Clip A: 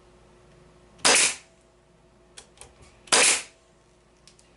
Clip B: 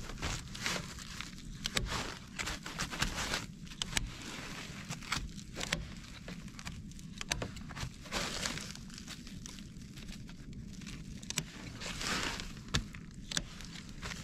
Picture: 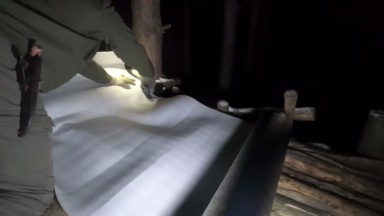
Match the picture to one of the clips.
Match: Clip B